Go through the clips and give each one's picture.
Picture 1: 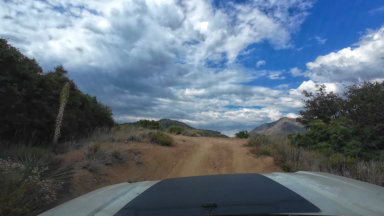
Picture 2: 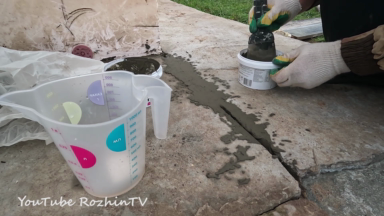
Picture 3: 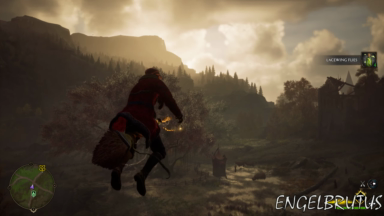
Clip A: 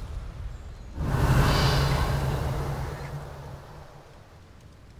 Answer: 3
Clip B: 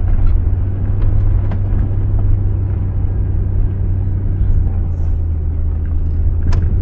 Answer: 1